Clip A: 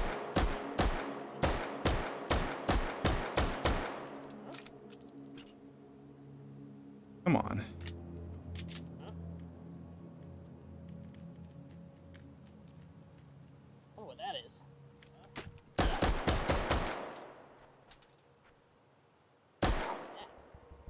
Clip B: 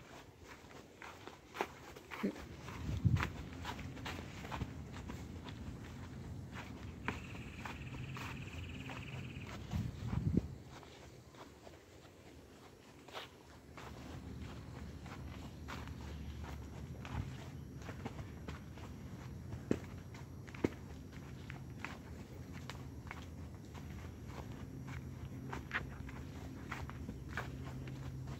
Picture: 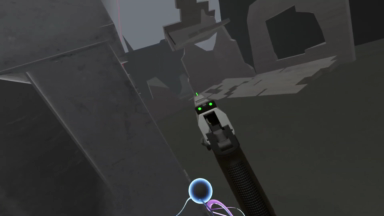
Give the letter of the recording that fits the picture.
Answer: A